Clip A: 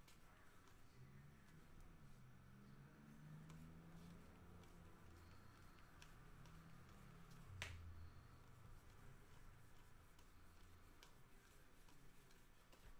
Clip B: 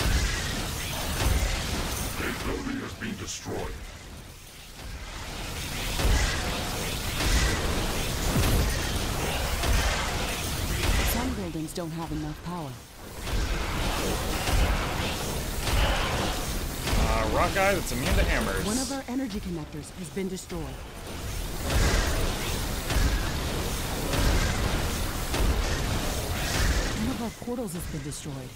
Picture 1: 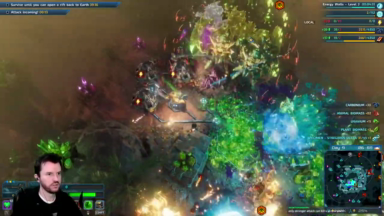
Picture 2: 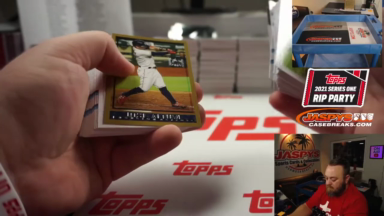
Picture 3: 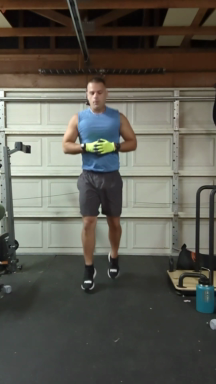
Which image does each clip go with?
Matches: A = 2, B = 1